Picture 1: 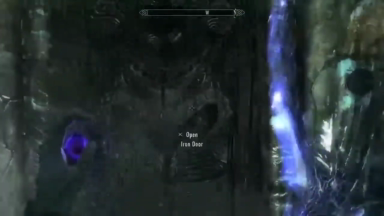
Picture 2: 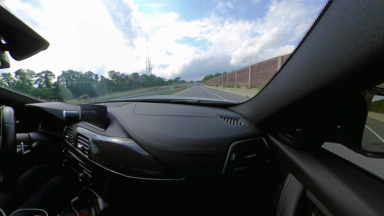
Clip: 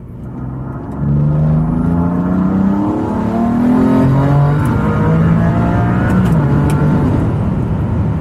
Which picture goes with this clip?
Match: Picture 2